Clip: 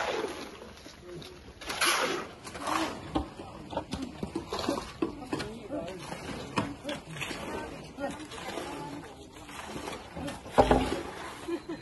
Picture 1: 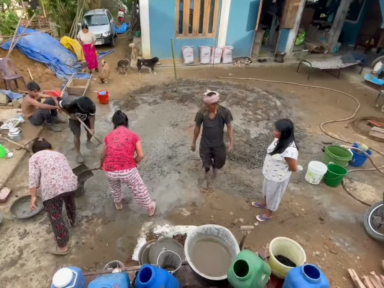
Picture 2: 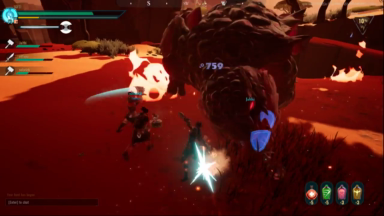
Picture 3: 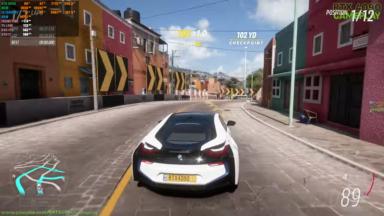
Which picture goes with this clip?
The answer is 1